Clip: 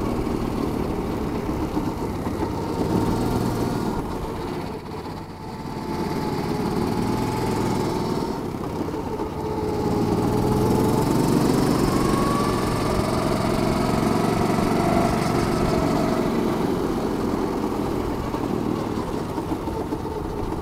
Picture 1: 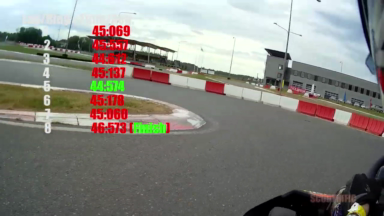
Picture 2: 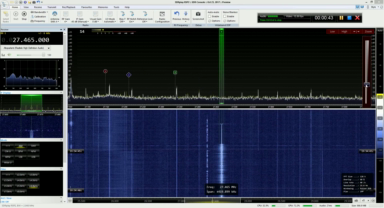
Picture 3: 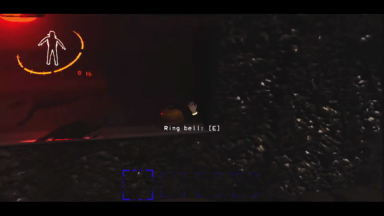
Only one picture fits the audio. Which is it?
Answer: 1